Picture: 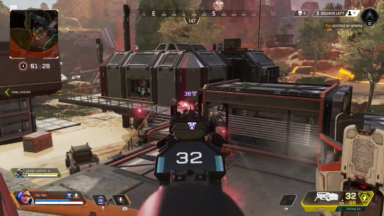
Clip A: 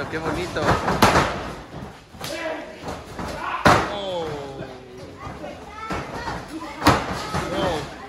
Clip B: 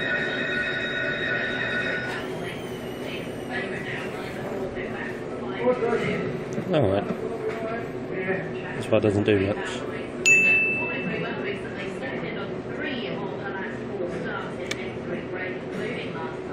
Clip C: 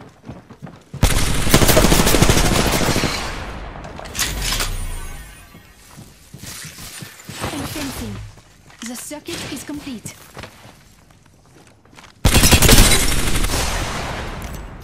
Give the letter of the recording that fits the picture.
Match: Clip C